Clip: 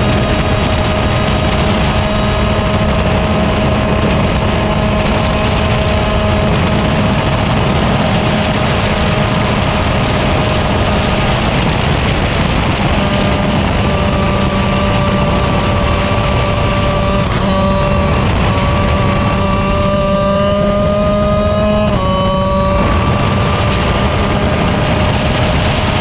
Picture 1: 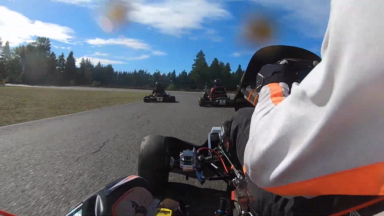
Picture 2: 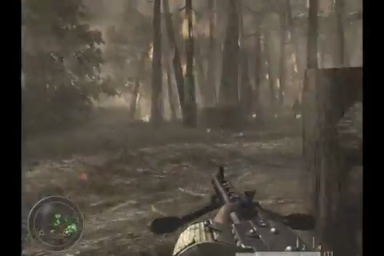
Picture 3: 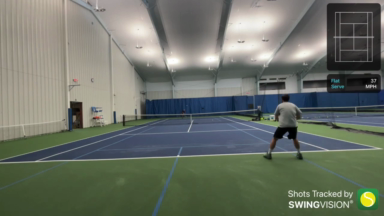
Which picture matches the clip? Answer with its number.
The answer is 1